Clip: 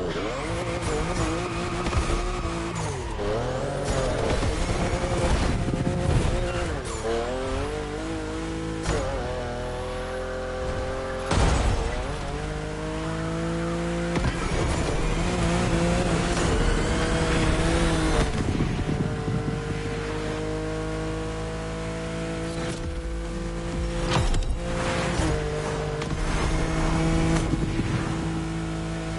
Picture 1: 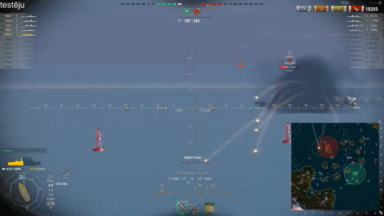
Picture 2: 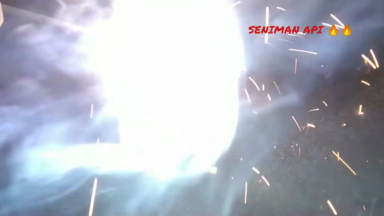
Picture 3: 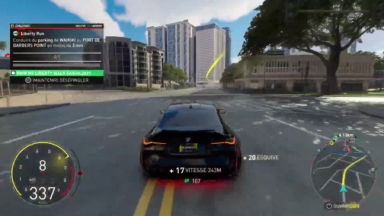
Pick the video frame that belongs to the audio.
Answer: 3